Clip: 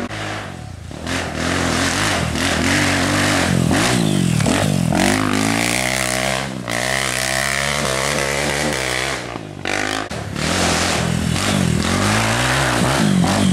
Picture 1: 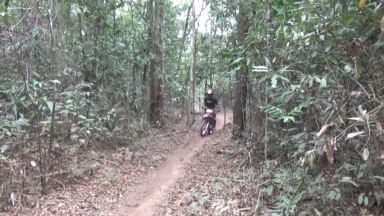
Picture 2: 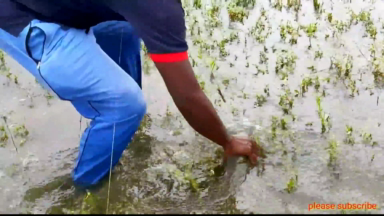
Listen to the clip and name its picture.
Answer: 1